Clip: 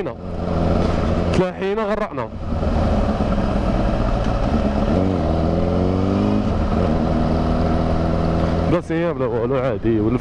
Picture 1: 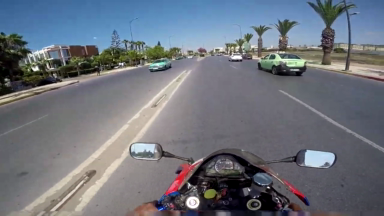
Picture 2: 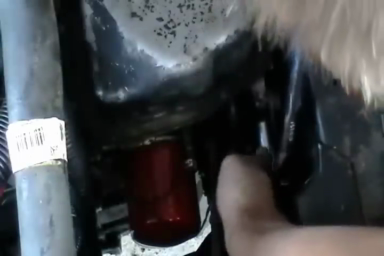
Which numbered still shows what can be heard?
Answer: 1